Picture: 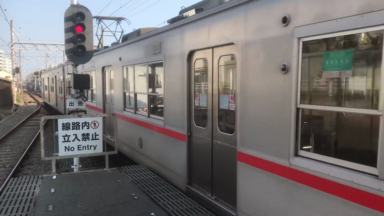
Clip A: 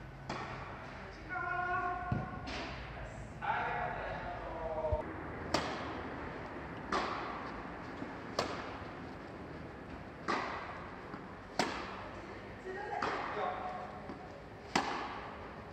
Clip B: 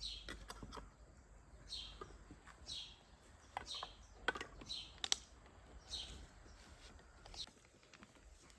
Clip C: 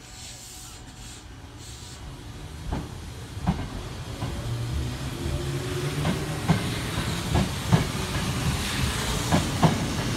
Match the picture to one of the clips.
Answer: C